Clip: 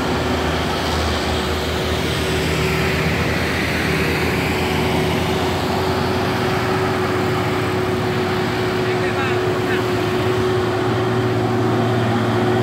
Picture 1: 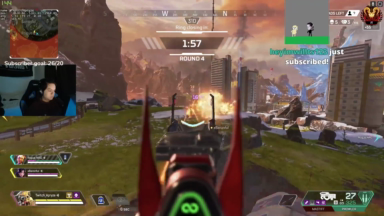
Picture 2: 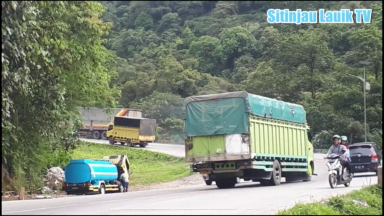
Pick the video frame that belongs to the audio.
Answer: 2